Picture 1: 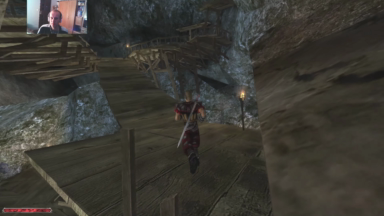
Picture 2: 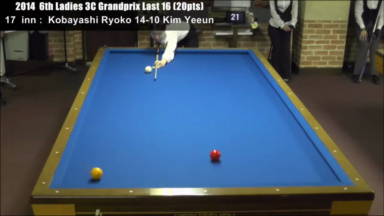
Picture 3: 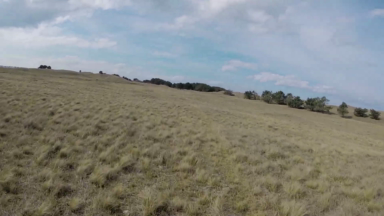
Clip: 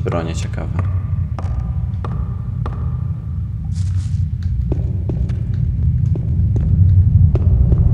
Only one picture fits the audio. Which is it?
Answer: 1